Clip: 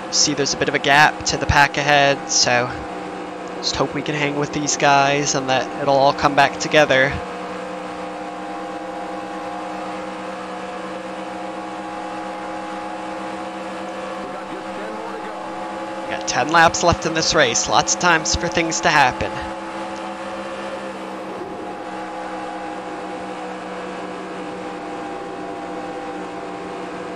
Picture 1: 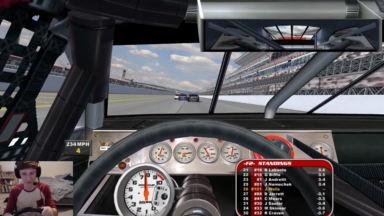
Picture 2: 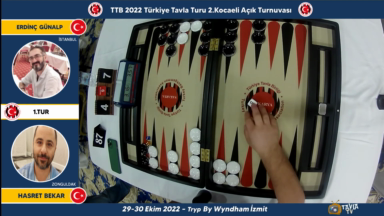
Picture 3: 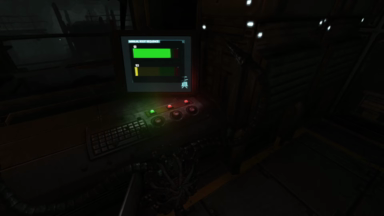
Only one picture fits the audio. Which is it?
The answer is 1